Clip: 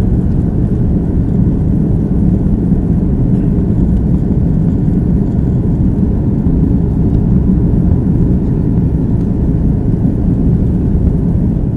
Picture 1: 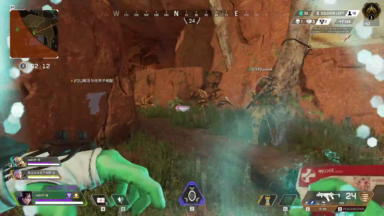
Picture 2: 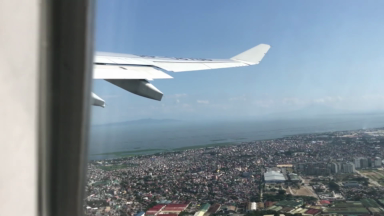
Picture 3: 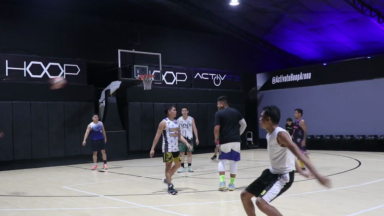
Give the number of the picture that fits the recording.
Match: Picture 2